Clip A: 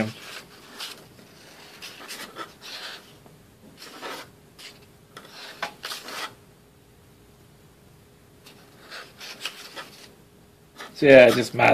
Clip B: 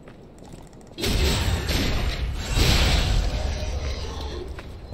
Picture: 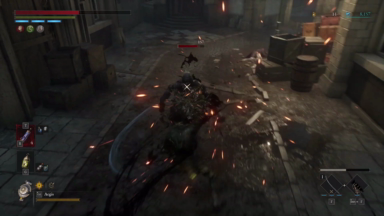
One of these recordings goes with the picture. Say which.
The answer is B